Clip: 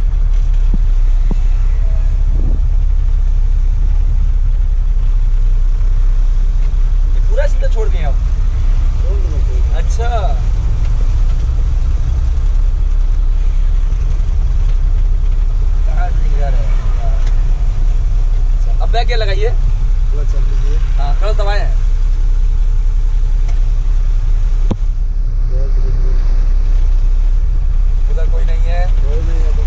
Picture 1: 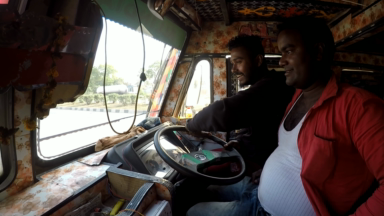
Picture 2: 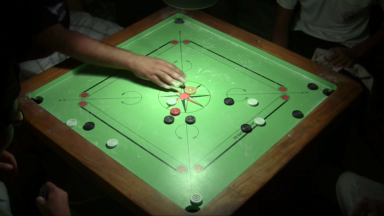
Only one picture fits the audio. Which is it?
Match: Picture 1